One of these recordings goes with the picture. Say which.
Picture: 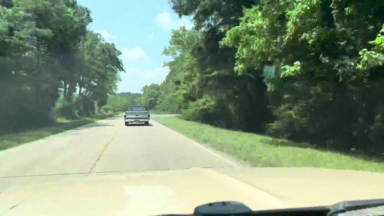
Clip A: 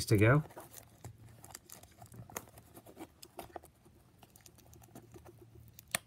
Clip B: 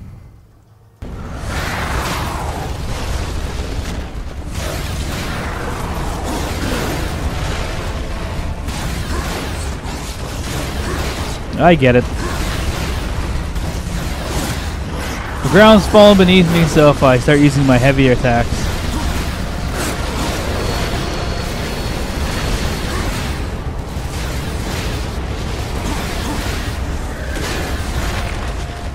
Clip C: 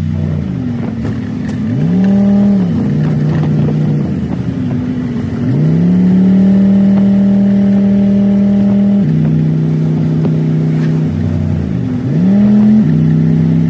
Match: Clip C